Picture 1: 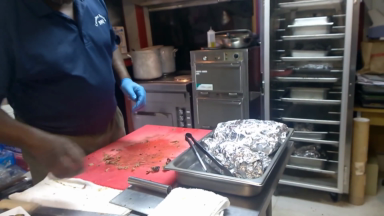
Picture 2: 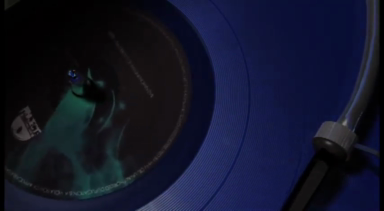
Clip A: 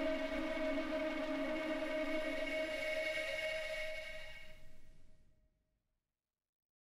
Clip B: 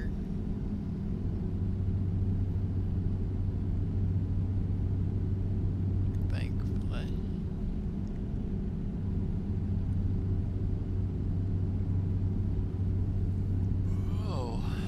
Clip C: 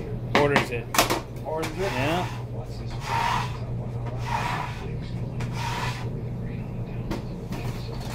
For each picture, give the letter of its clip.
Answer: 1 C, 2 A